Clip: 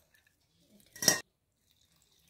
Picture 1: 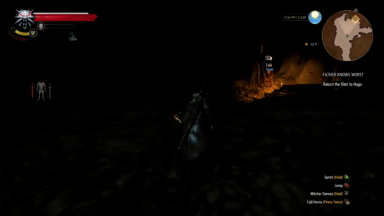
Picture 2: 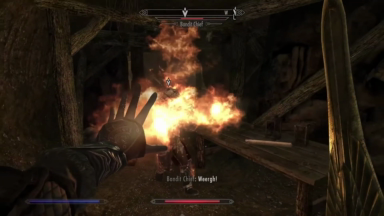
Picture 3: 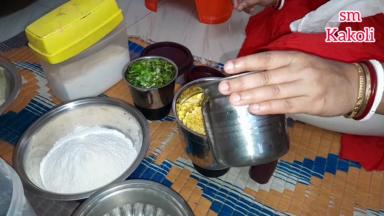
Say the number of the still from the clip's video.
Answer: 3